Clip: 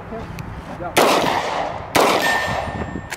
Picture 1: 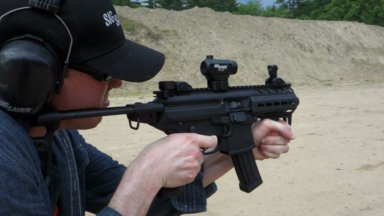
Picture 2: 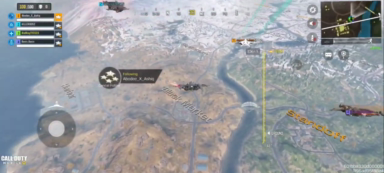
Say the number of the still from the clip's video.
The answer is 1